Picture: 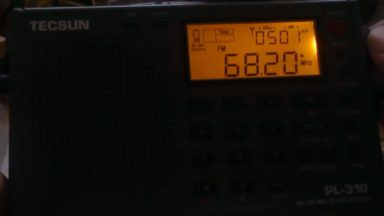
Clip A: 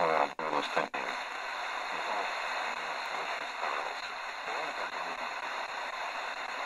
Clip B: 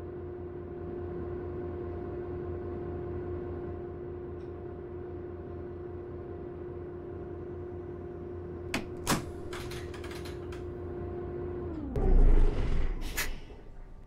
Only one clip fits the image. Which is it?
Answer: A